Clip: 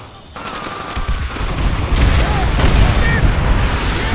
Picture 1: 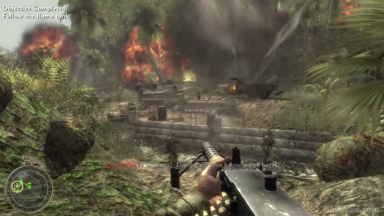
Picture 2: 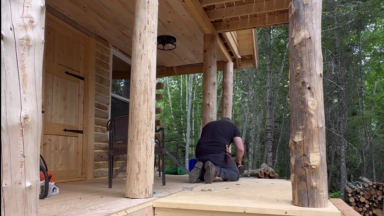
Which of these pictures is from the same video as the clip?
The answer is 1